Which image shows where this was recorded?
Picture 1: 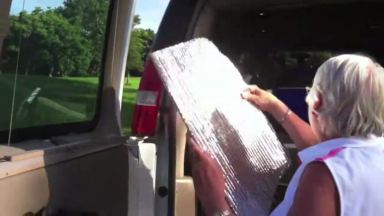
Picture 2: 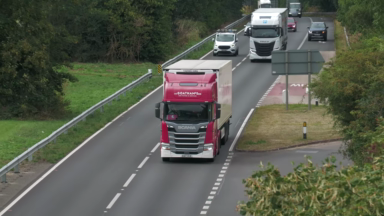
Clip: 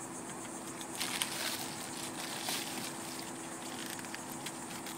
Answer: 1